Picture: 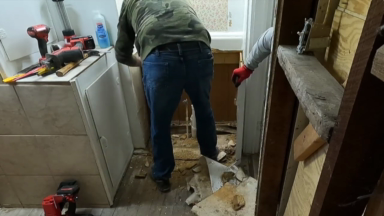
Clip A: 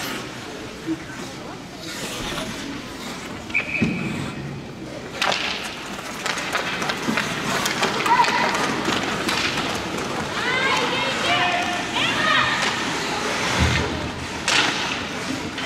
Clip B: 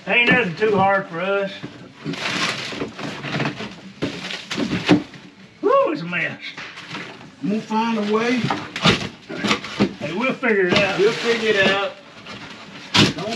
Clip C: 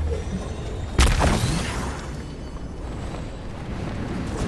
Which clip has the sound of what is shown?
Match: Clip B